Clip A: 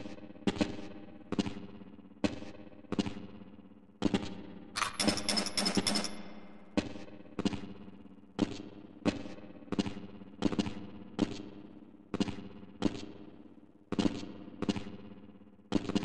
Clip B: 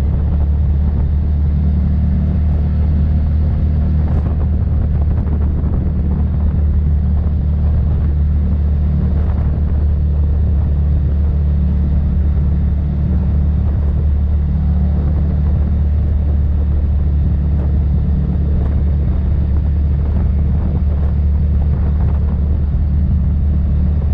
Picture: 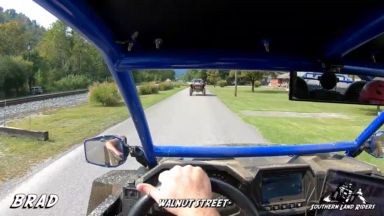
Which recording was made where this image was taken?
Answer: B